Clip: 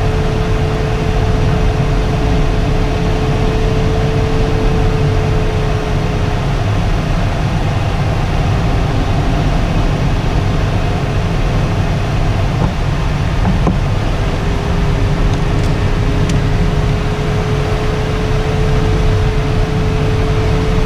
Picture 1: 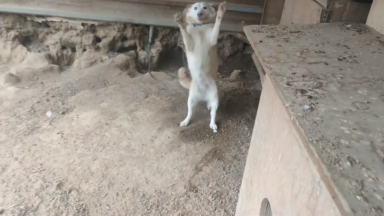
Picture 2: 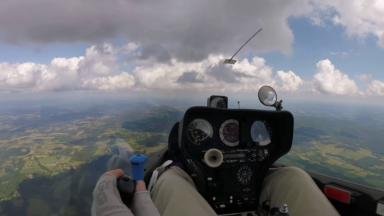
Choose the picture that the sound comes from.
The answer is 2